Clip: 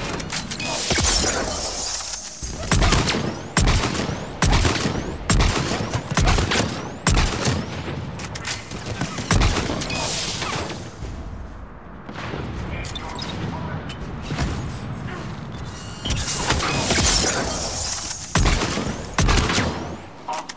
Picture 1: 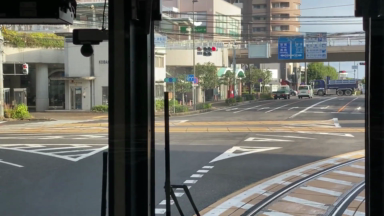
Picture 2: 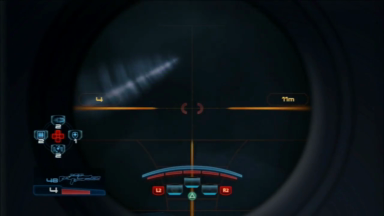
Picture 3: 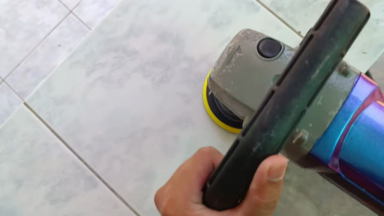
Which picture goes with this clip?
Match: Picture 2